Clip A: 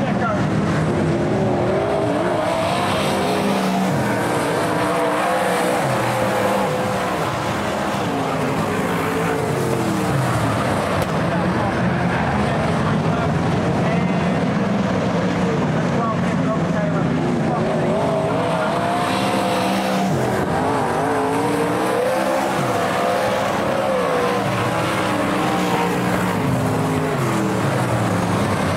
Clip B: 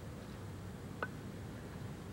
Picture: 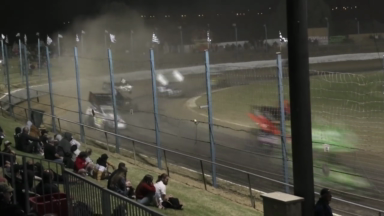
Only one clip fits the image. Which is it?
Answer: A